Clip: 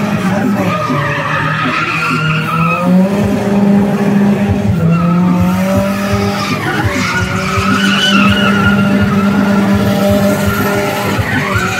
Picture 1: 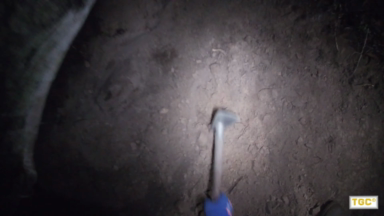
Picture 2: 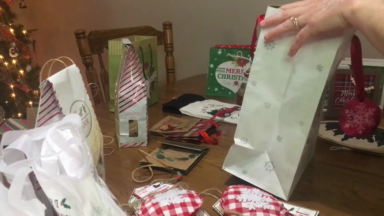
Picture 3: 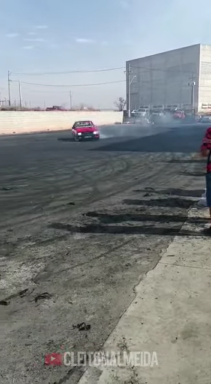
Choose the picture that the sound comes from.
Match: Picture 3